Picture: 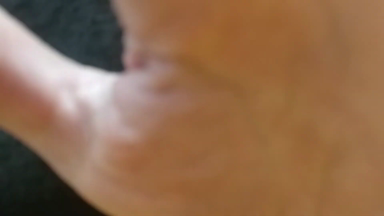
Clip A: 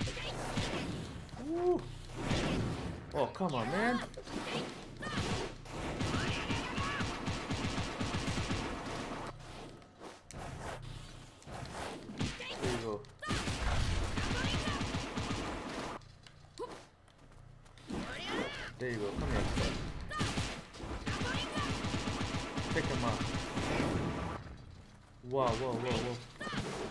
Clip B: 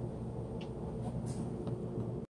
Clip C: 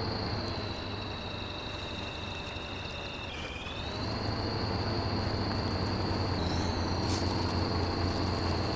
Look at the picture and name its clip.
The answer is B